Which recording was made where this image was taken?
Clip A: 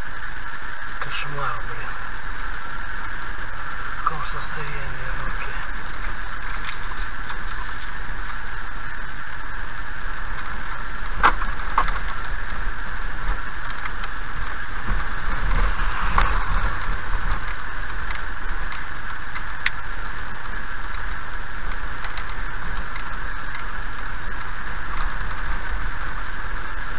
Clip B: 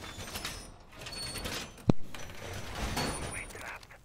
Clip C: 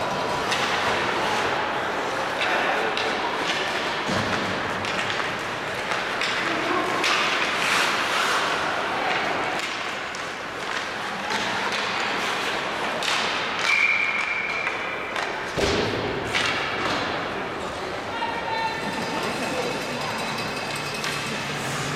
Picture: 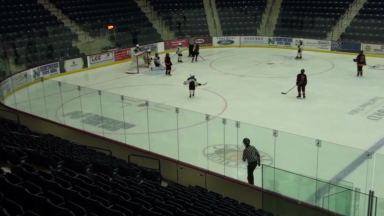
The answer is C